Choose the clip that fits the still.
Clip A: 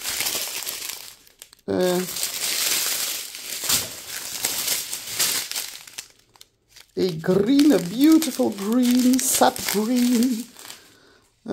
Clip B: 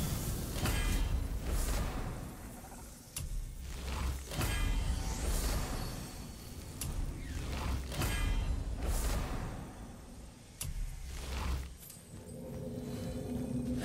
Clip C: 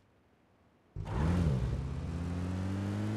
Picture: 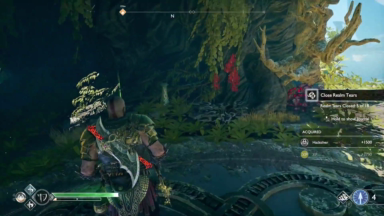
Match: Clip B